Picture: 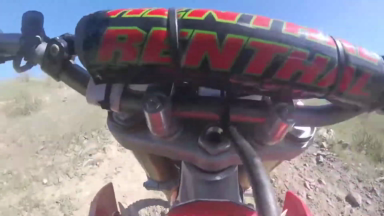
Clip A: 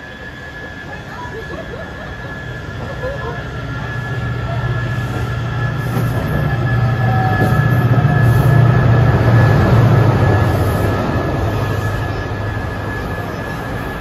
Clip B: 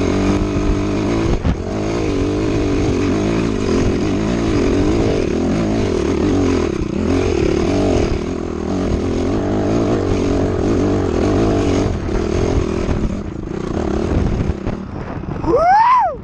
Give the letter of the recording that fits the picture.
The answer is B